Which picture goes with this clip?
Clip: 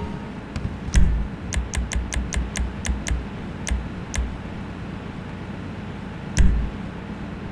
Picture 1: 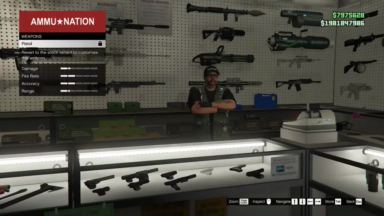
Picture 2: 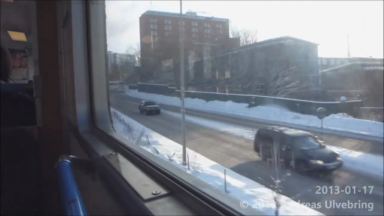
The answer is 1